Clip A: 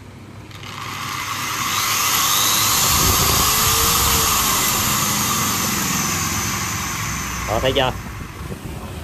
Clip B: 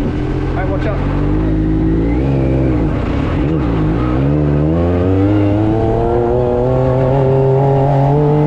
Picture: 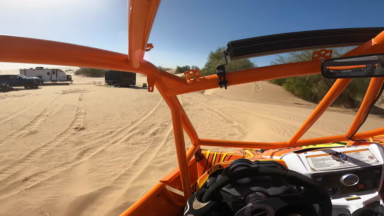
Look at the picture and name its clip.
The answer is B